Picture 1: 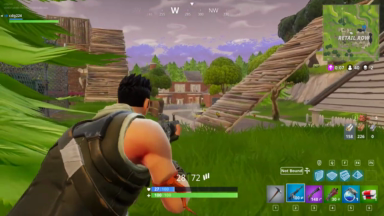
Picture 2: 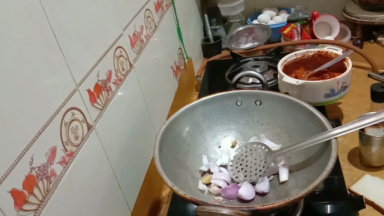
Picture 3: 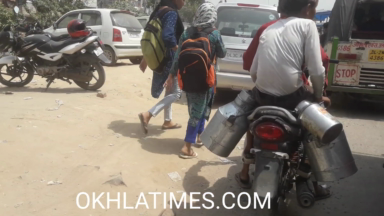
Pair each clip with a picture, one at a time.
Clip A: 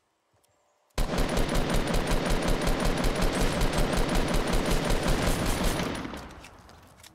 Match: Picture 1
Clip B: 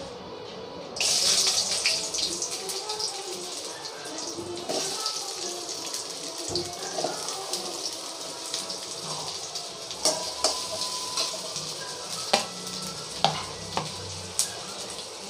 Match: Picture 2